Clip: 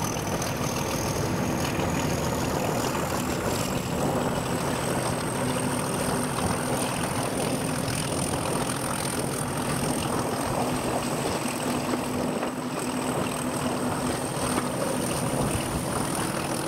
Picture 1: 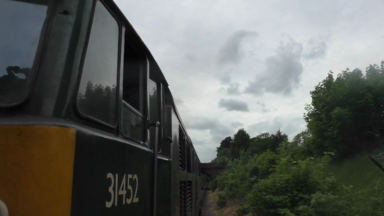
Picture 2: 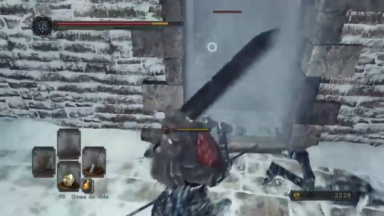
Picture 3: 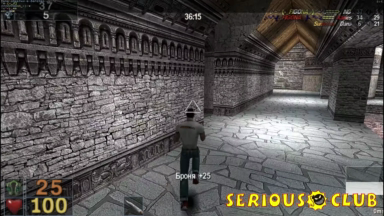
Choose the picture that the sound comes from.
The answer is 1